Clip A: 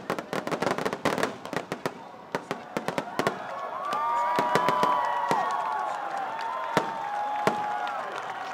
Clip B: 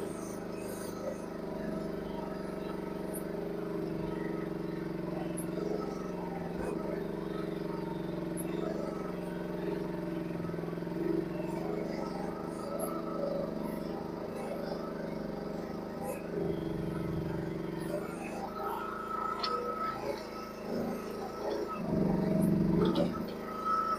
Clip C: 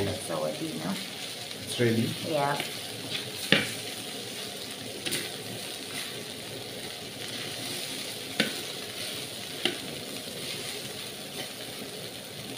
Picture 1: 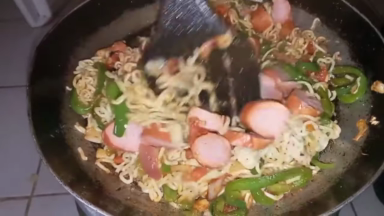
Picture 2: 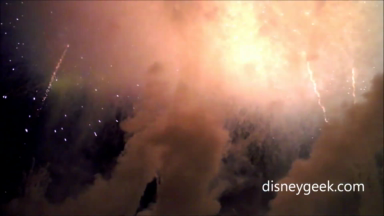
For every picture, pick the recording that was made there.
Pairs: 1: C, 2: A